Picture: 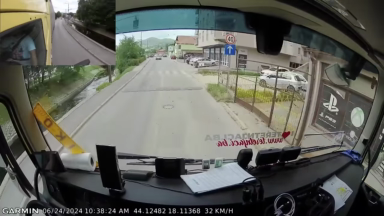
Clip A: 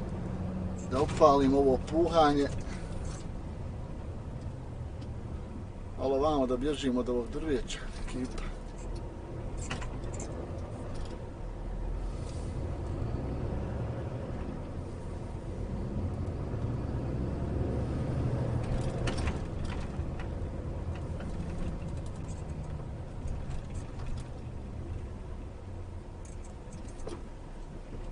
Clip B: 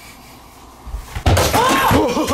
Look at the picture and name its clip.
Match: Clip A